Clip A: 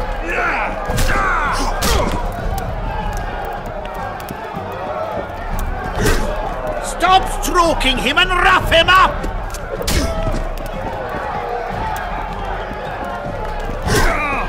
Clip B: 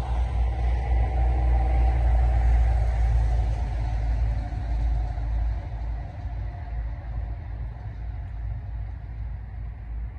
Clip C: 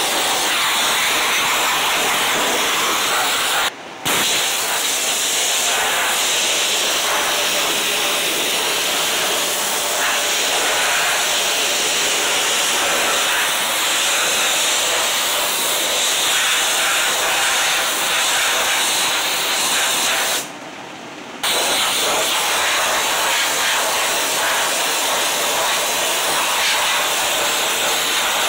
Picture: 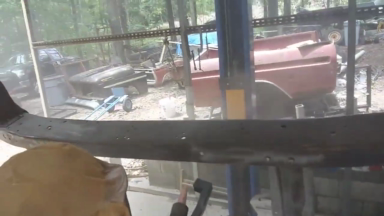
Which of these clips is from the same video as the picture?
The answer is C